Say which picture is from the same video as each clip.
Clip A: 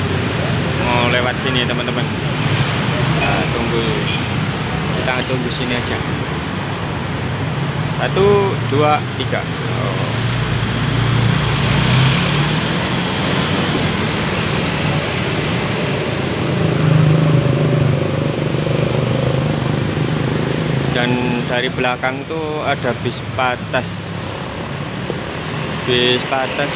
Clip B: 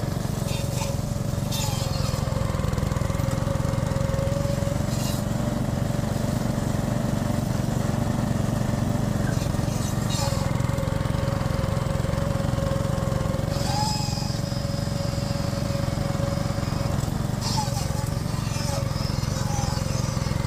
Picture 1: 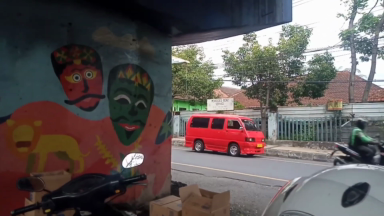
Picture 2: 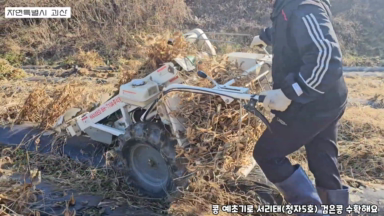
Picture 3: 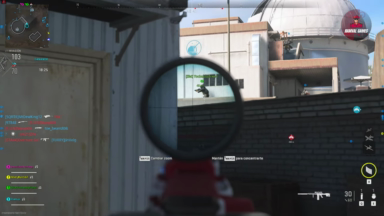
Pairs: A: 1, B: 2